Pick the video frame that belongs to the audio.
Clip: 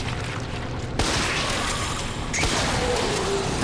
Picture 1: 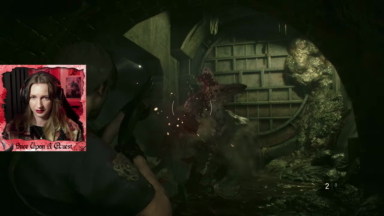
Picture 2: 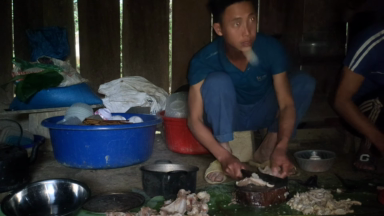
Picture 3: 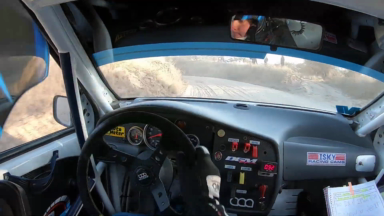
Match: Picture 1